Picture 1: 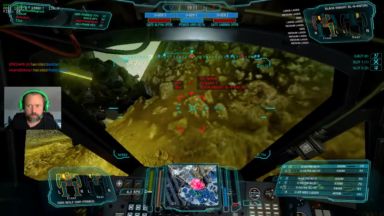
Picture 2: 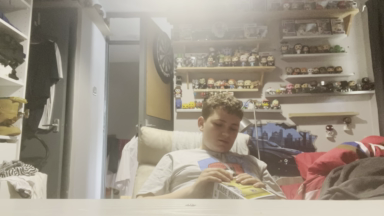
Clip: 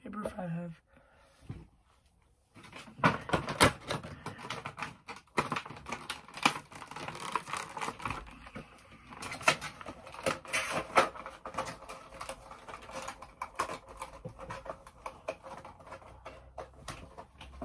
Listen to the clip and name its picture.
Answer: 2